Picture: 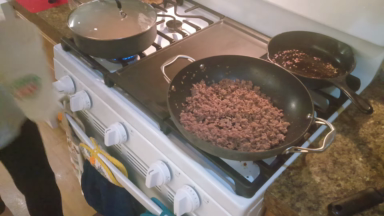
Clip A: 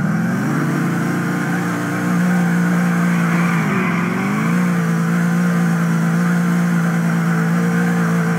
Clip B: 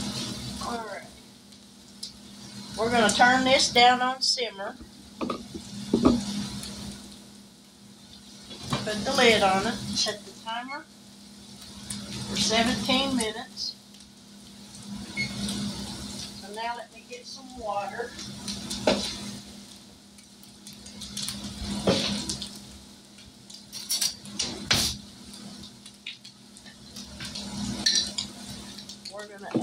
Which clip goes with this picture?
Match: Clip B